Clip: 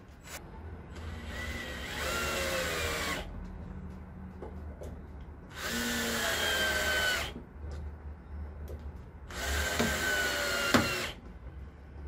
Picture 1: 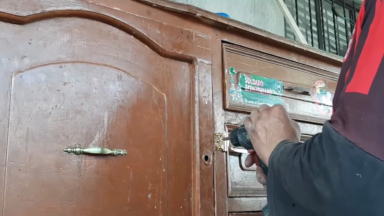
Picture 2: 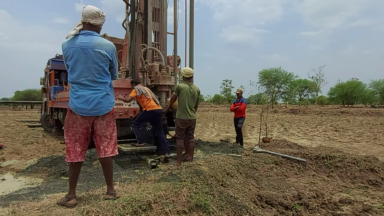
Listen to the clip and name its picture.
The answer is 1